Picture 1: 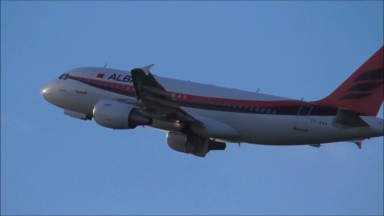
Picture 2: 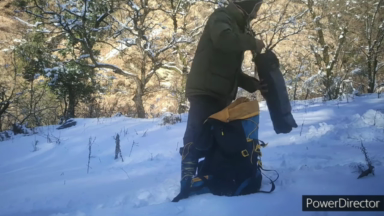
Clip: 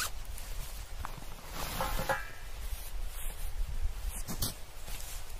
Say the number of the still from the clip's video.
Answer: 2